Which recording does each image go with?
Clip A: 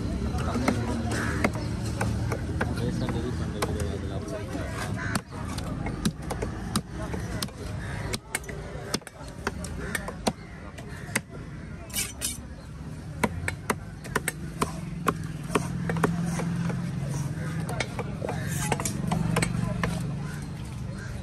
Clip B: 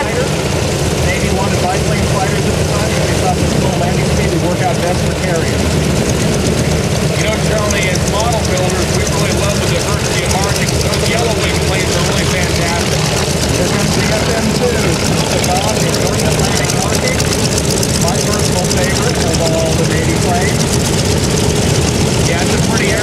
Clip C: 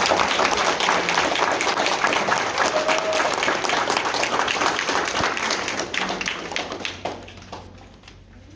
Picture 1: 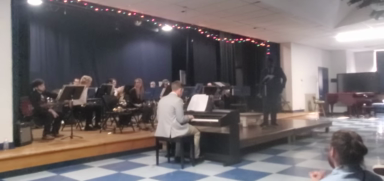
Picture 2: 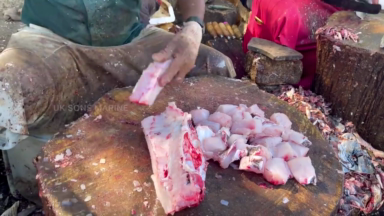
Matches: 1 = C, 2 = A